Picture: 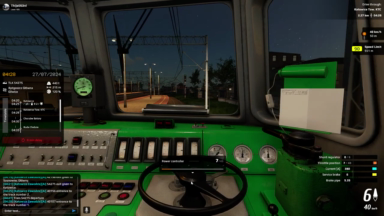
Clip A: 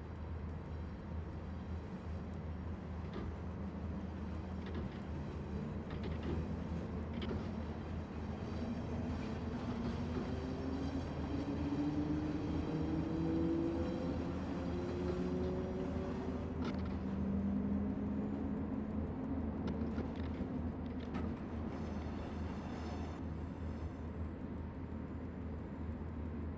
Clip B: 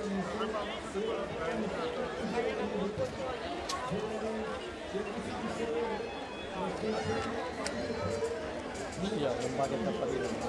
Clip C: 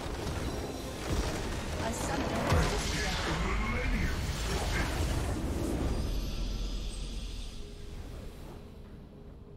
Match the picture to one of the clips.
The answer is A